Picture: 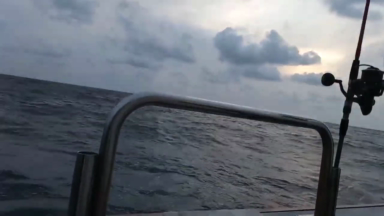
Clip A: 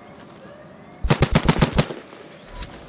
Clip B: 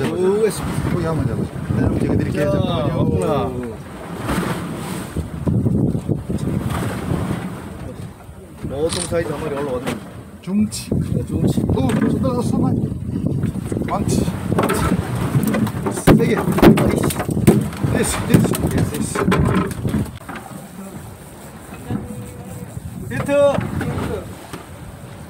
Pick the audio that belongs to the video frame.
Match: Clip B